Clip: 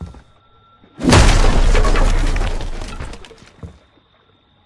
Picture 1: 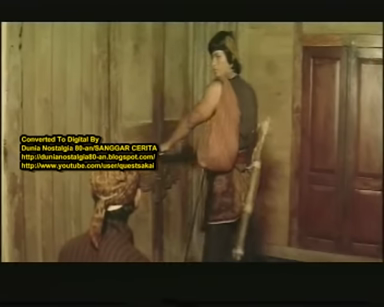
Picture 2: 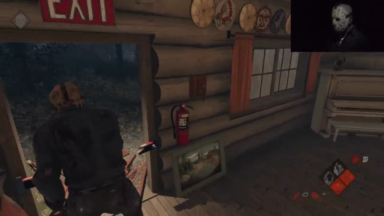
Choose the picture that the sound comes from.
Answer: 2